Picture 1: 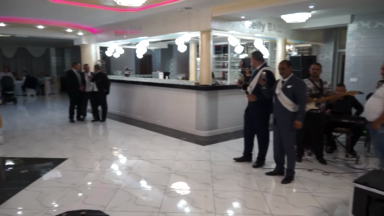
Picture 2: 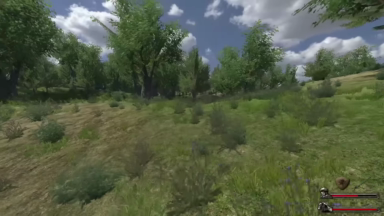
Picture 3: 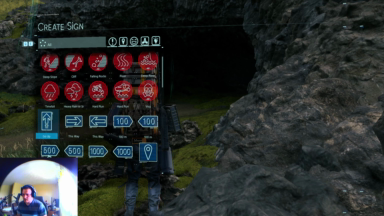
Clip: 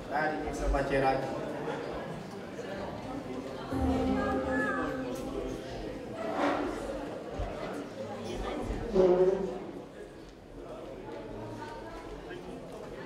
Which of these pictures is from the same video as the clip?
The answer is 1